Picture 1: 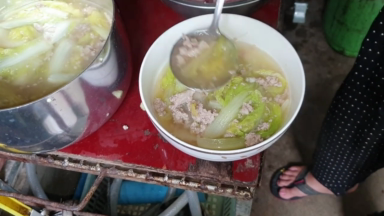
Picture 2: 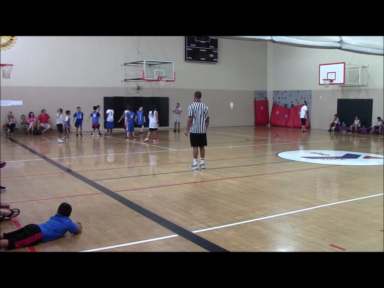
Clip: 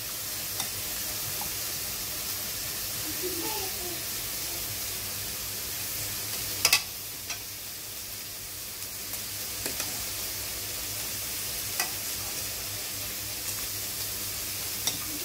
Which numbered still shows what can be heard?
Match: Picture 1